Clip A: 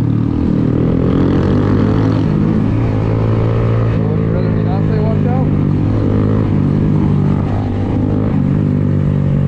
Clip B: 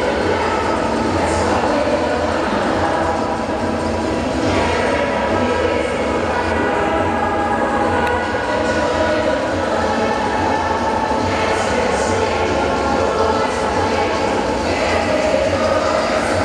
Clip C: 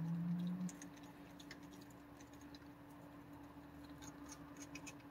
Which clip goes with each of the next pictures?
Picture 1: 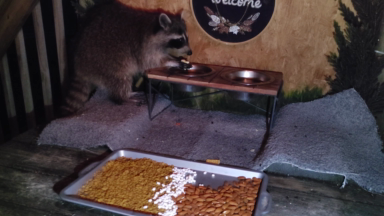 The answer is C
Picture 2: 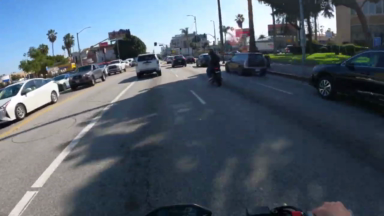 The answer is A